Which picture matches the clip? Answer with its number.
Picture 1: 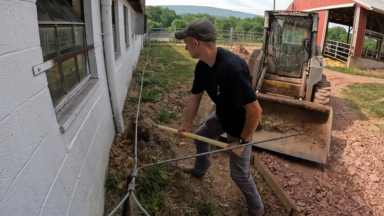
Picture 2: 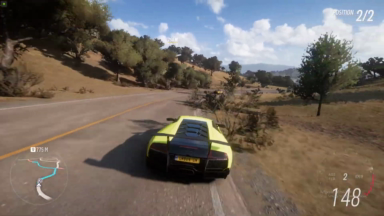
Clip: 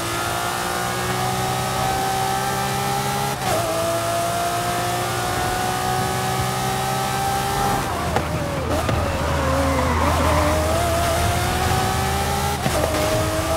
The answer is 2